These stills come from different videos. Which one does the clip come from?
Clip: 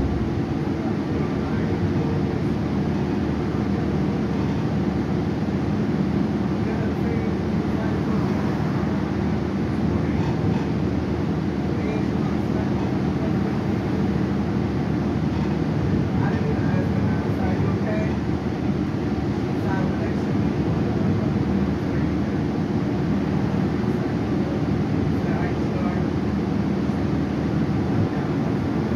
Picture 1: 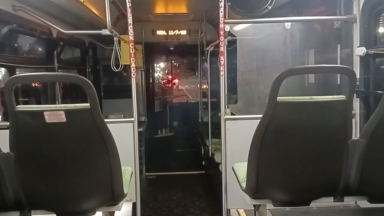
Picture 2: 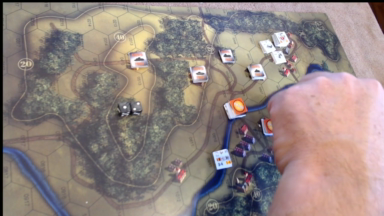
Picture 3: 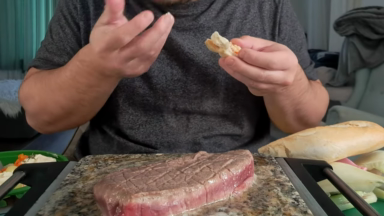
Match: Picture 1